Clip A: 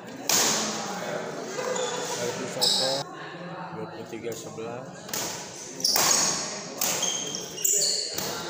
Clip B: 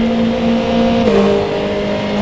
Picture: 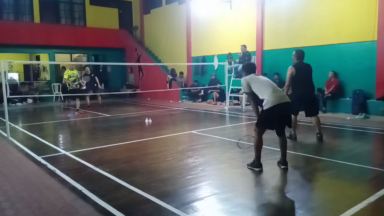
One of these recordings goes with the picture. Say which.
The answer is A